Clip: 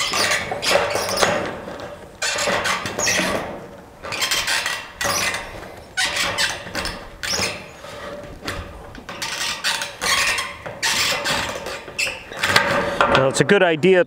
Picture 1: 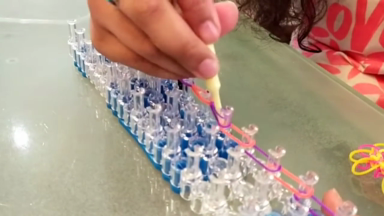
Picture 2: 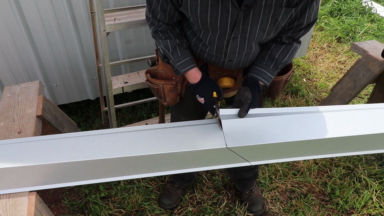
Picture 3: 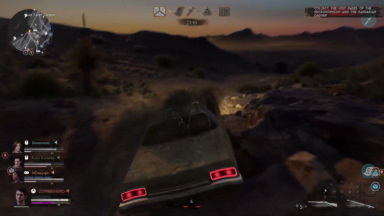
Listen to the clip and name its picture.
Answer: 2